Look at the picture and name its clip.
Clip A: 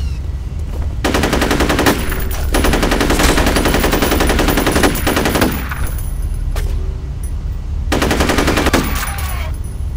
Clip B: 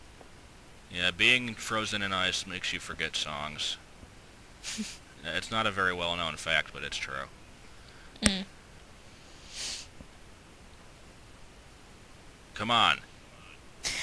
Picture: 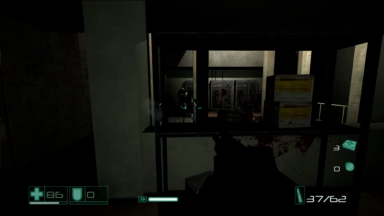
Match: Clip A